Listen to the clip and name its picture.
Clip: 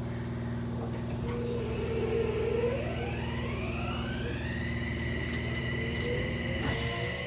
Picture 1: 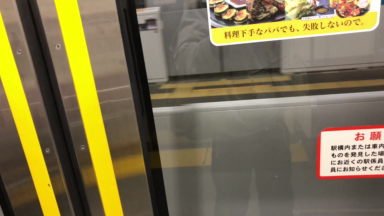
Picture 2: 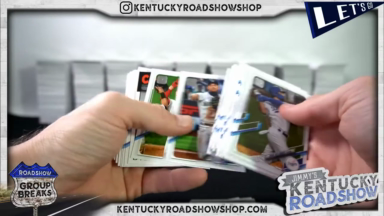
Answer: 1